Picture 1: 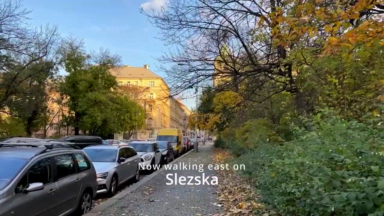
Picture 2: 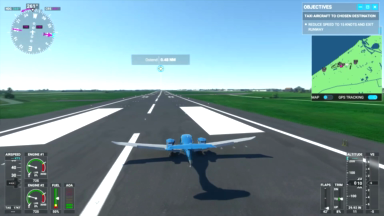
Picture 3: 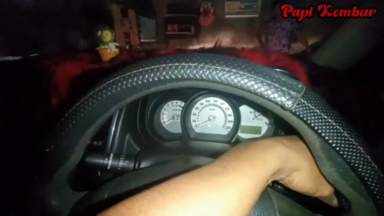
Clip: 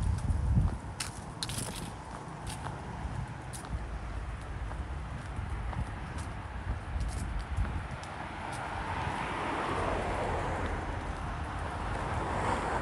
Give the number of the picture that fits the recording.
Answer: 1